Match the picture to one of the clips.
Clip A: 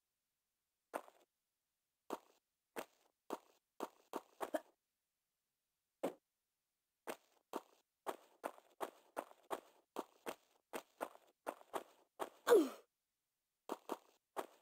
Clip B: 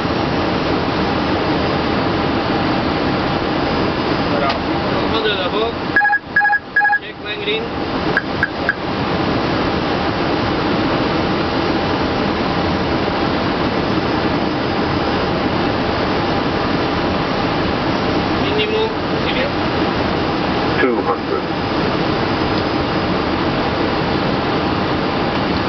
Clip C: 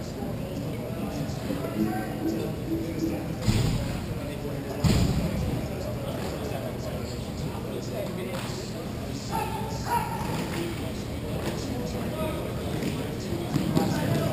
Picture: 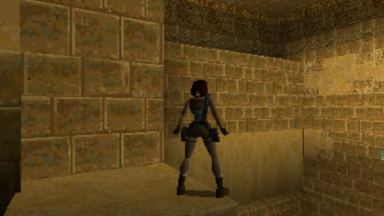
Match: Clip A